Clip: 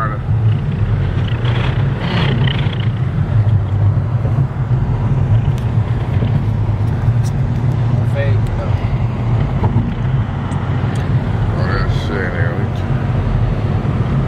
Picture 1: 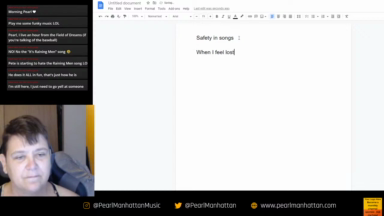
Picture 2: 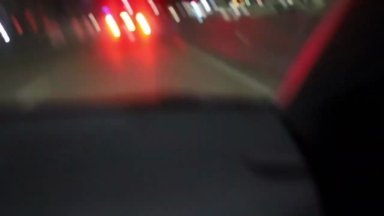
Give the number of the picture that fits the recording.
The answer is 2